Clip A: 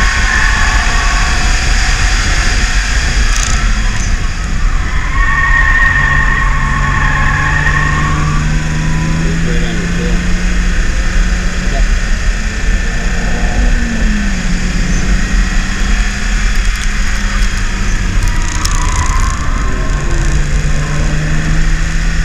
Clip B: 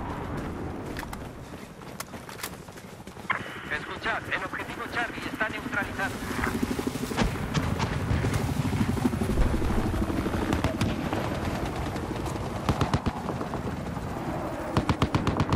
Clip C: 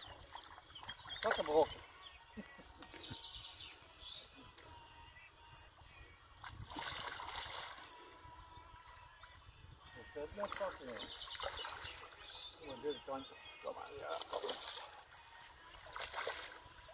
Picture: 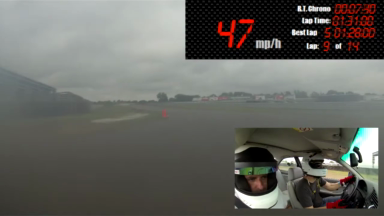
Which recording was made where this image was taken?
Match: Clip A